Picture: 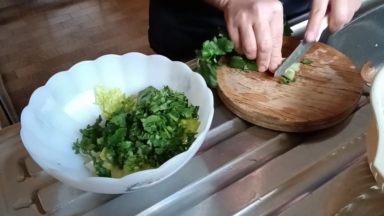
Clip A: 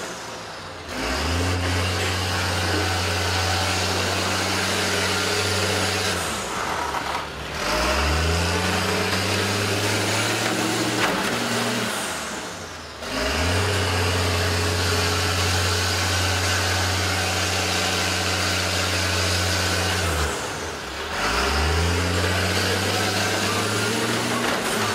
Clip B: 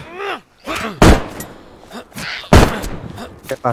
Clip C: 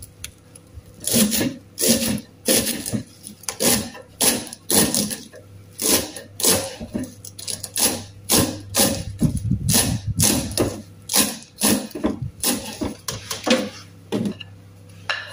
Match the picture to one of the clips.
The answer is C